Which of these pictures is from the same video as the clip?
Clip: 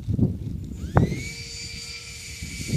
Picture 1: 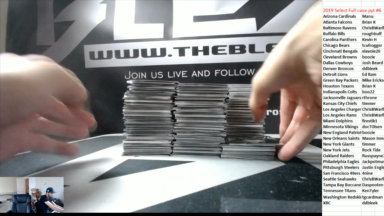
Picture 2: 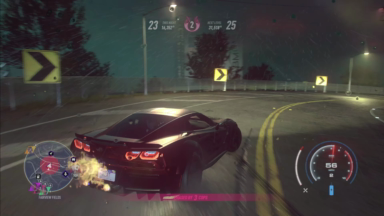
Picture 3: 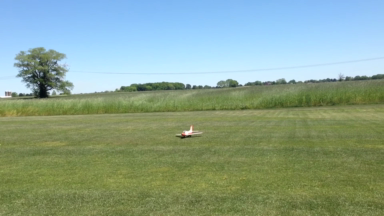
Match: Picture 3